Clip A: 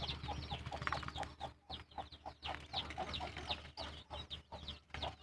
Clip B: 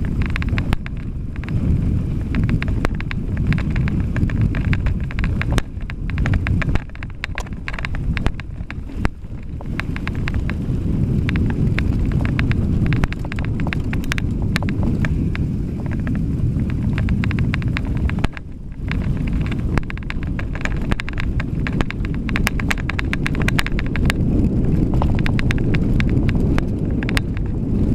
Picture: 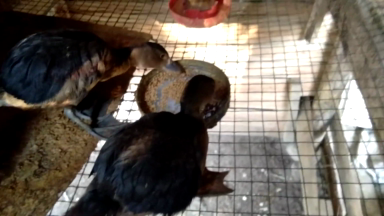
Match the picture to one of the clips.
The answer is A